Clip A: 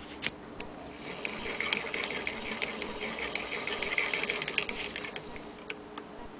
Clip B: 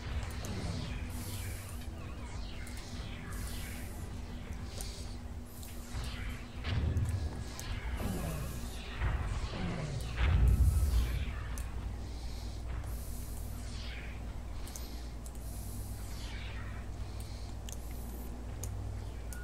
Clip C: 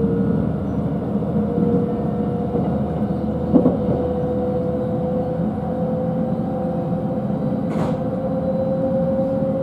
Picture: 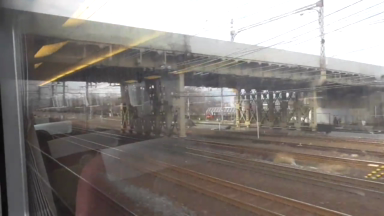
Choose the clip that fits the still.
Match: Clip C